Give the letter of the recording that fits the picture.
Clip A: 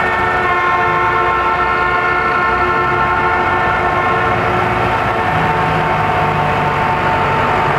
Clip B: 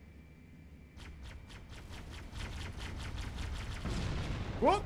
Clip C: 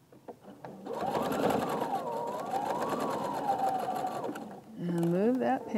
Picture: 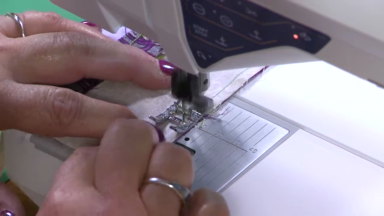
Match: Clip C